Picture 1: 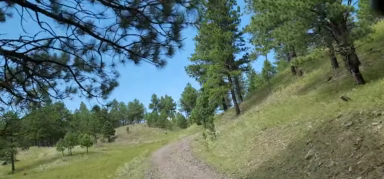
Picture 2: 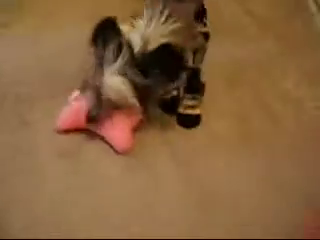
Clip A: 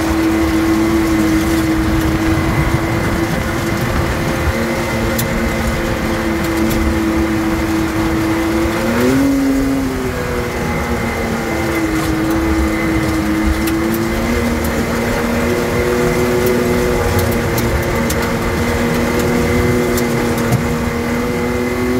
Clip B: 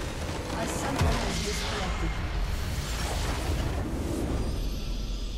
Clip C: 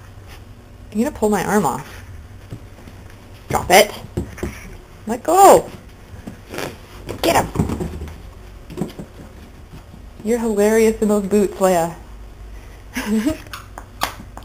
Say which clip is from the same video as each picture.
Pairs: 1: A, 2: C